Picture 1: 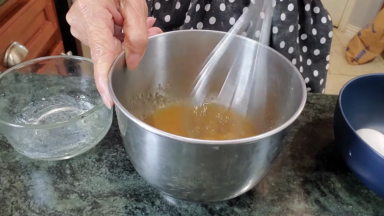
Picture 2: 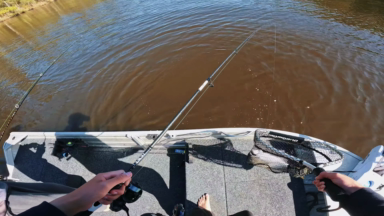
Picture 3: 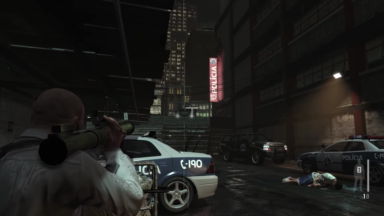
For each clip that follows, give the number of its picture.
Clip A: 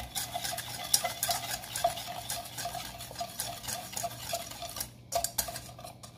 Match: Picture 1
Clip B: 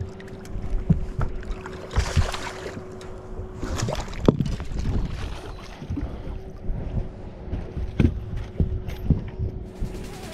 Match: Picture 2